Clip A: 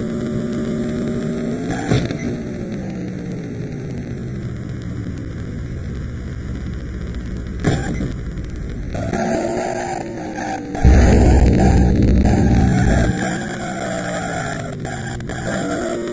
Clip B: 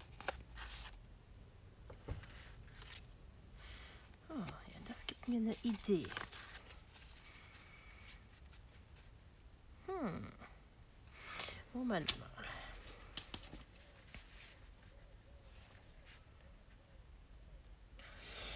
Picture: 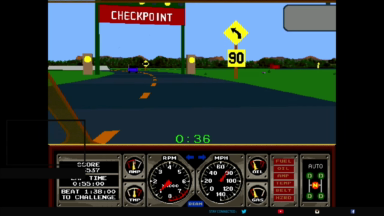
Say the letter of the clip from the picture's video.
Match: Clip A